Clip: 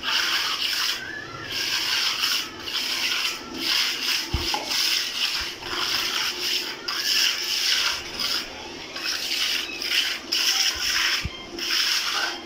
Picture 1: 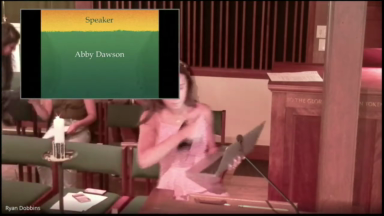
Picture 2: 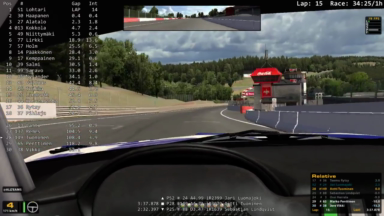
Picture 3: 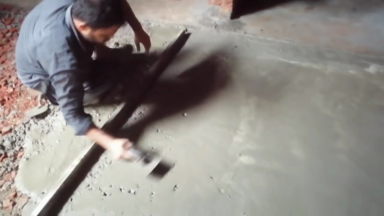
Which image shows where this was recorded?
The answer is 3